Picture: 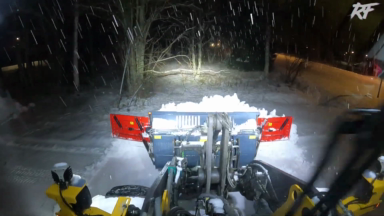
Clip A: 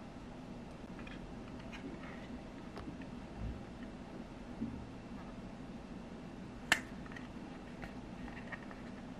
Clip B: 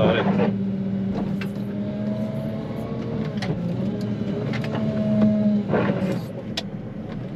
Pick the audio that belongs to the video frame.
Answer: B